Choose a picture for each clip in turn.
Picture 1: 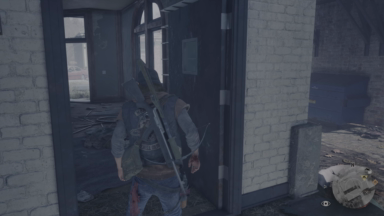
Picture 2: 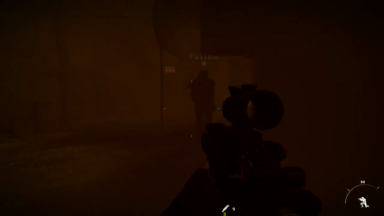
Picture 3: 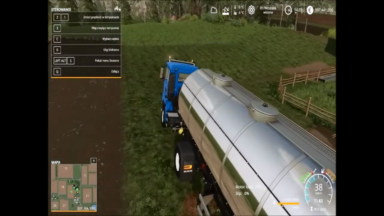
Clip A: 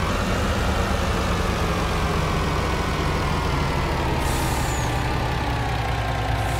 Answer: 3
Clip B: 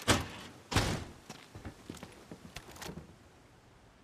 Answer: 1